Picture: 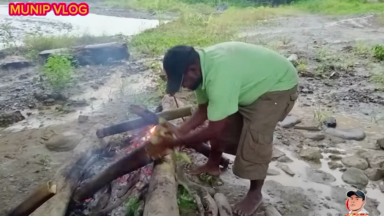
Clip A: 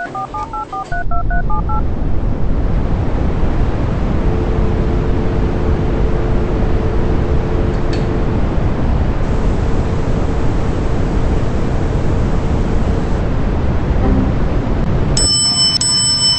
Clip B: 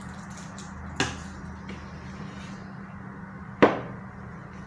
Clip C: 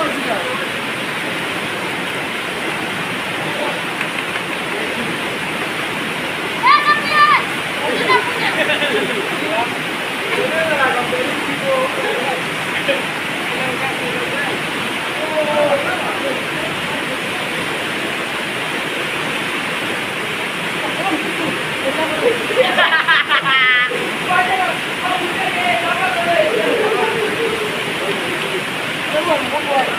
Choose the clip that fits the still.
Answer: C